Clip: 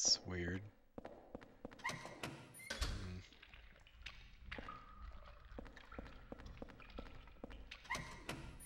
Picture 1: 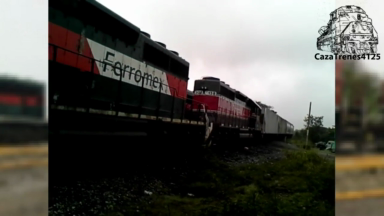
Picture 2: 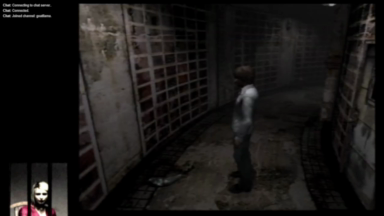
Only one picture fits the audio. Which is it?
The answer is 2